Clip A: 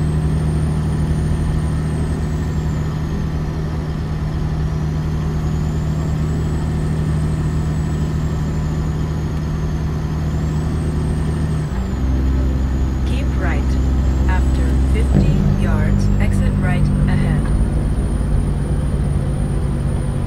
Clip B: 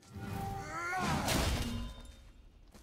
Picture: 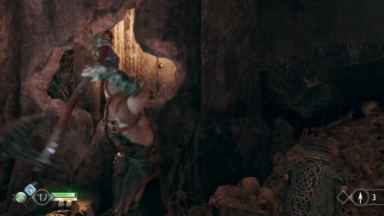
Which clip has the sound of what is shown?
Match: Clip B